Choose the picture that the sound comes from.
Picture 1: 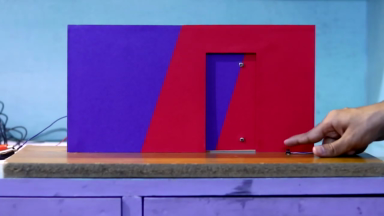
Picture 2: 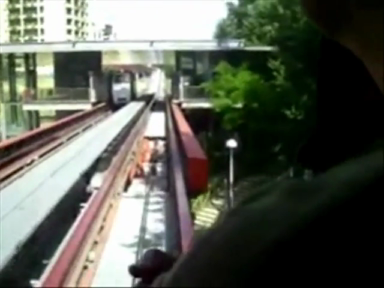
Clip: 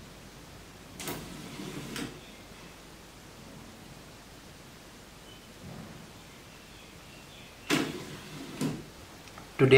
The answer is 1